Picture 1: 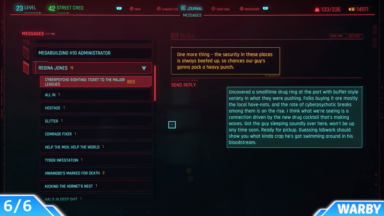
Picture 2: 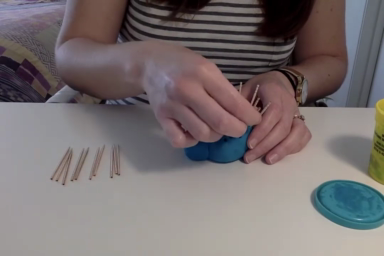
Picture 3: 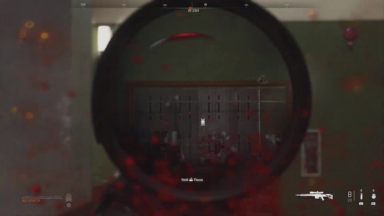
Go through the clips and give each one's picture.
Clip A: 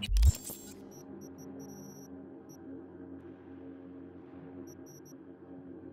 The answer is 1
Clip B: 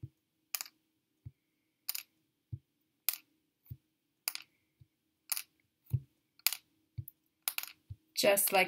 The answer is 2